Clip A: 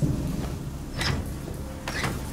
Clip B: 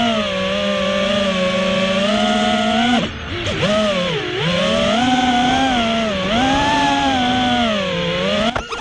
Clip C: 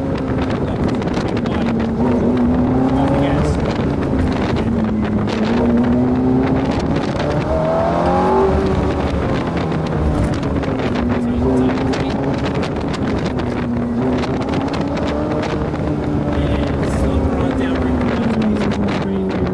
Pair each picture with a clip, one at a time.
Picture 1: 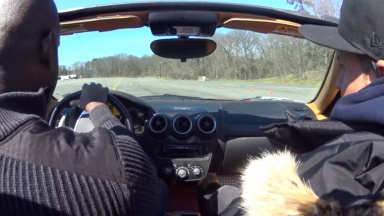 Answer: C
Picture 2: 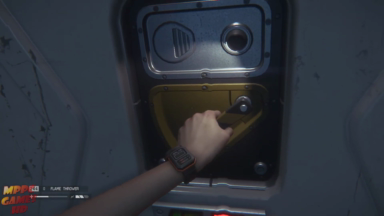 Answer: A